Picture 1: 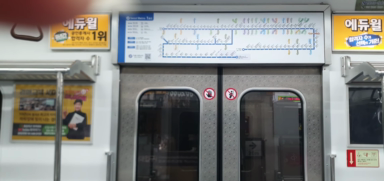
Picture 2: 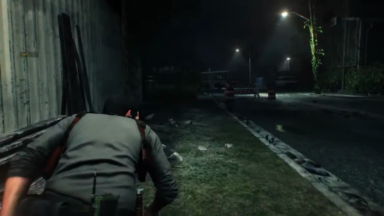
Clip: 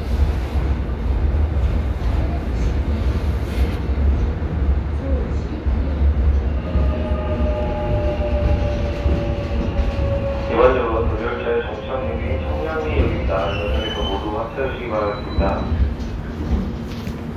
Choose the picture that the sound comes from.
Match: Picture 1